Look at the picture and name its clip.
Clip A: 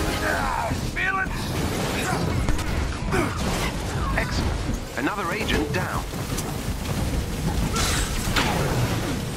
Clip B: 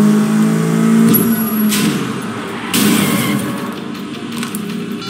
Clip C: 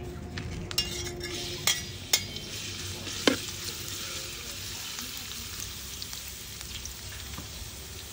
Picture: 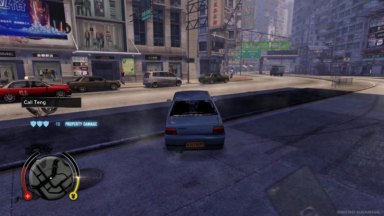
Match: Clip B